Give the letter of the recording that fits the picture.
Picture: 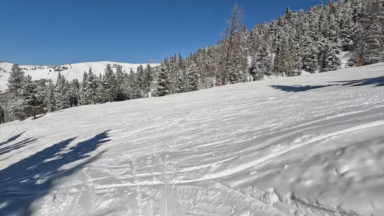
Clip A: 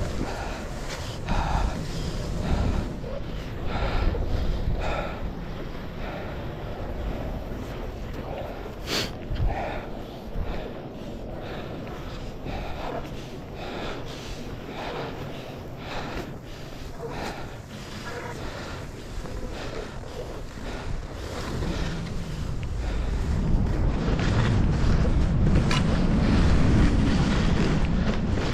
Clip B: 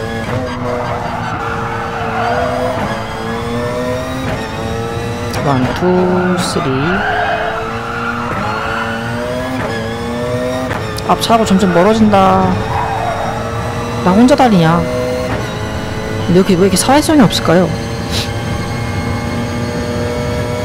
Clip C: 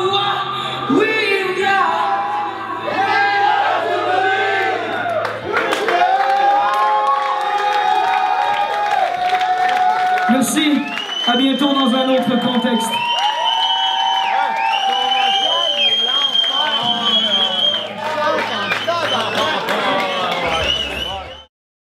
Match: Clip A